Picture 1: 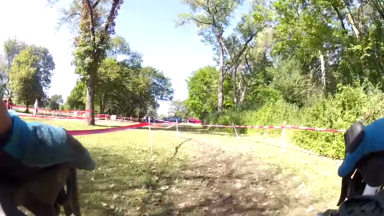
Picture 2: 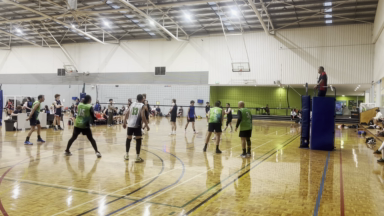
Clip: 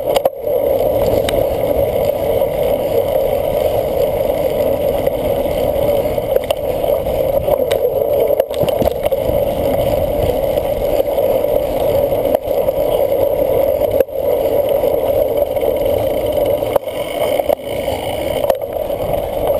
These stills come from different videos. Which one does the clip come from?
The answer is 1